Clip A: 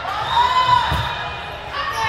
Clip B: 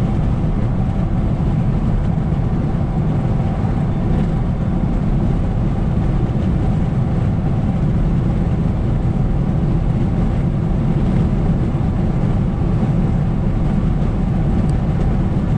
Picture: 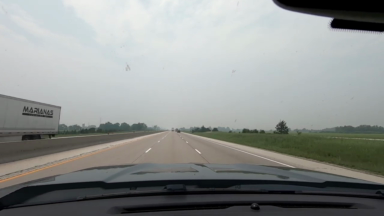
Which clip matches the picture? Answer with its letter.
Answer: B